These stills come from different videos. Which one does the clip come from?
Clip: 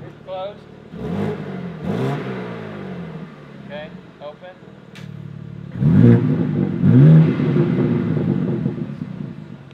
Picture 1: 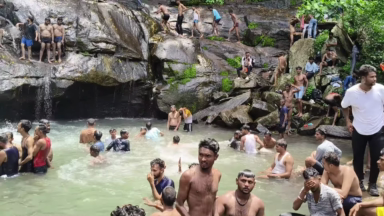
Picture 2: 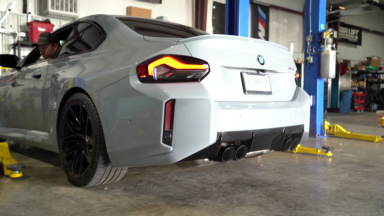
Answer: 2